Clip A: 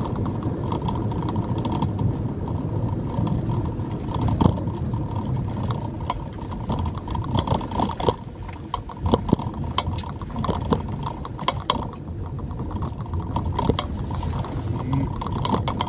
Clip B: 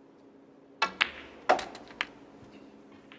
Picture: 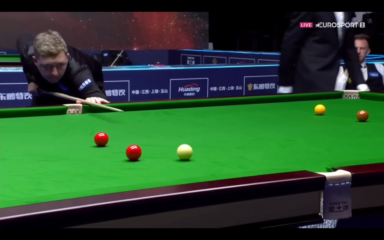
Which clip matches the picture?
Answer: B